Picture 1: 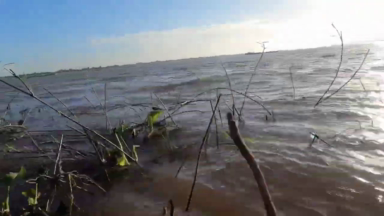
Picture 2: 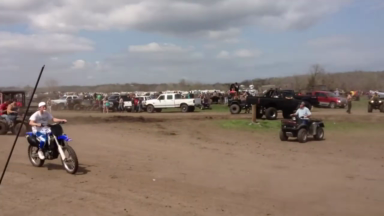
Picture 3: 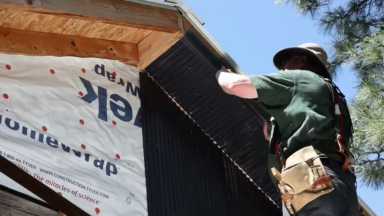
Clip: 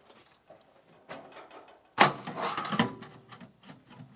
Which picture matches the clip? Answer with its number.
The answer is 3